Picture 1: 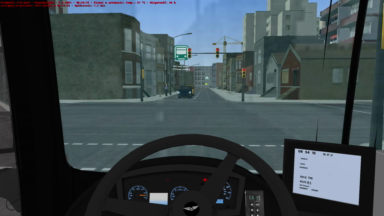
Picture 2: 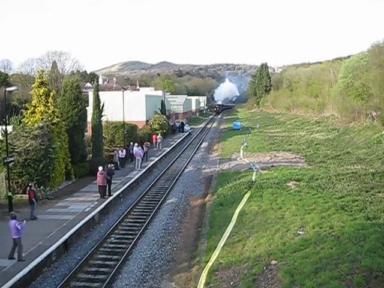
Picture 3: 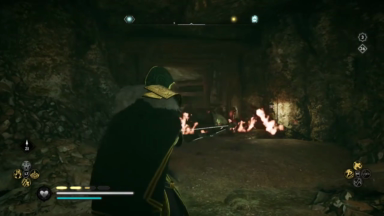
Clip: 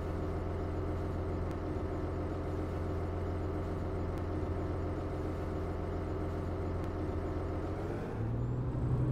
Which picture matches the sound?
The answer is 1